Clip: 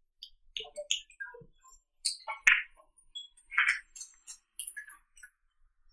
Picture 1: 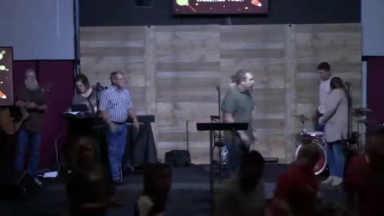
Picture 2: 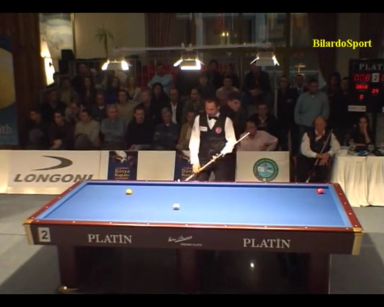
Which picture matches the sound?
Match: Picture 2